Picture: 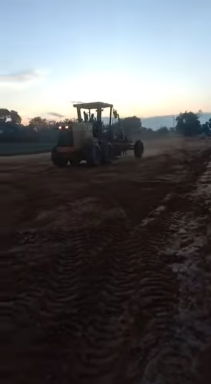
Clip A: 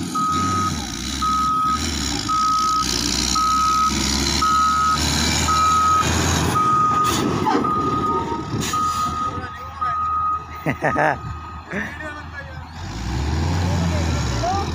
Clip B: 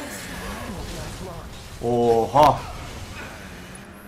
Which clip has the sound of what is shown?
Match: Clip A